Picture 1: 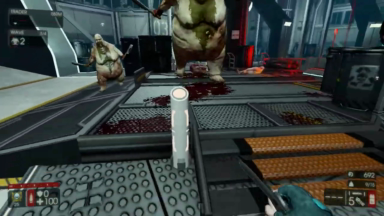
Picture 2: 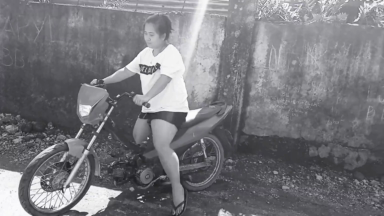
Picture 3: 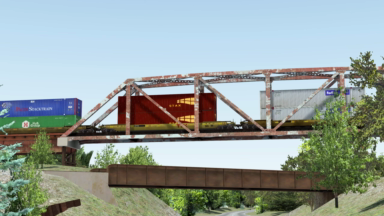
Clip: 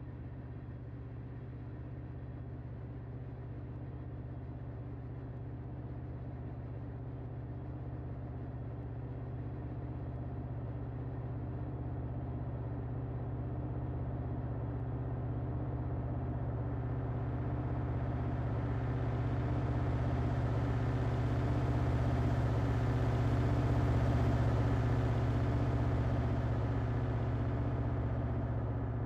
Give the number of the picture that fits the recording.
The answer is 3